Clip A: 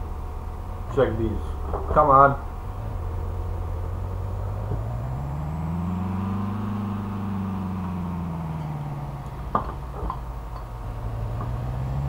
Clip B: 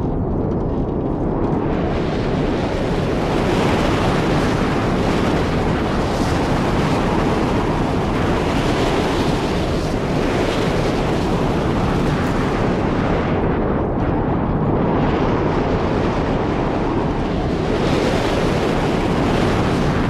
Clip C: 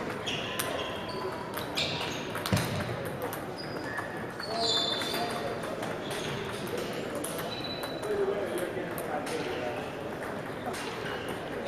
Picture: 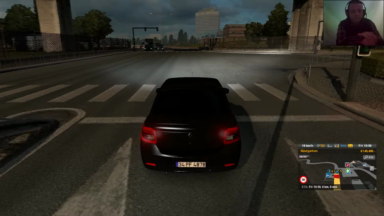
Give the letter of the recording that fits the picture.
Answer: A